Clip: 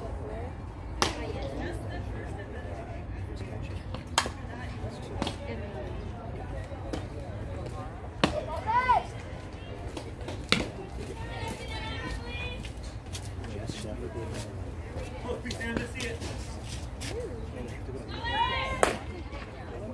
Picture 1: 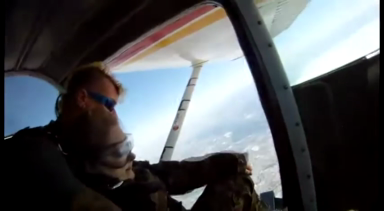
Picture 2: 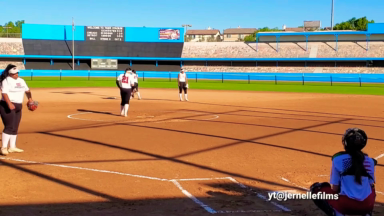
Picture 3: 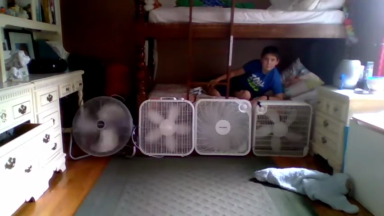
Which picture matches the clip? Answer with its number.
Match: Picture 2